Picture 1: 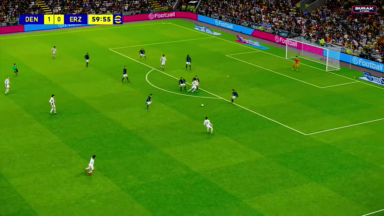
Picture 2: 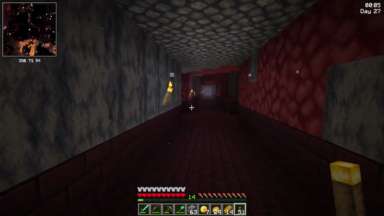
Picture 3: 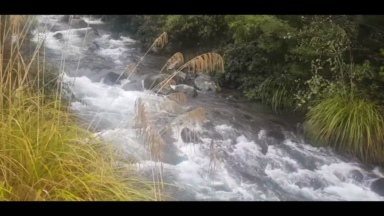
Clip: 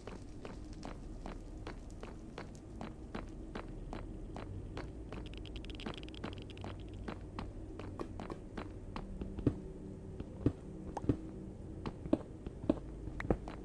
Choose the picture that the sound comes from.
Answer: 2